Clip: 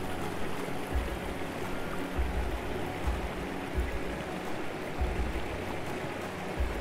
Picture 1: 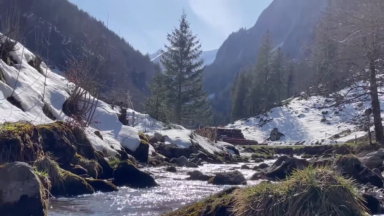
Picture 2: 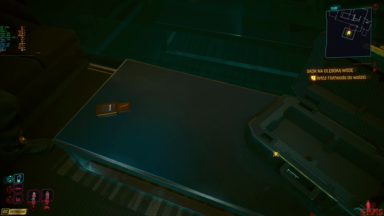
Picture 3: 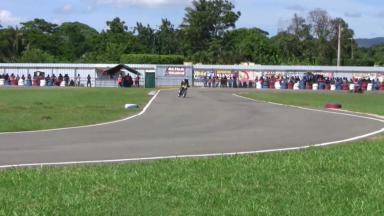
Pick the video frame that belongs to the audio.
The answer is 1